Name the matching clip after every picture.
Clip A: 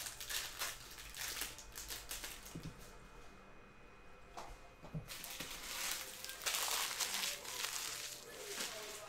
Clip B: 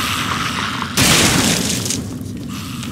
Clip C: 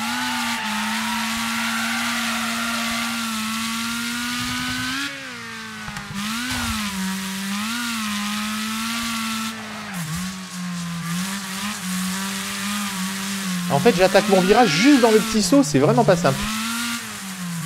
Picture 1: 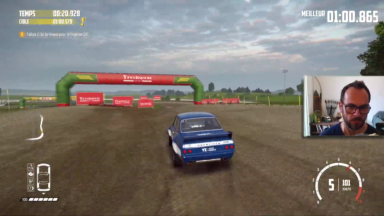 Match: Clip C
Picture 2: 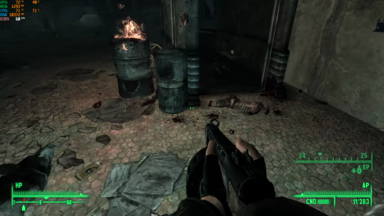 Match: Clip B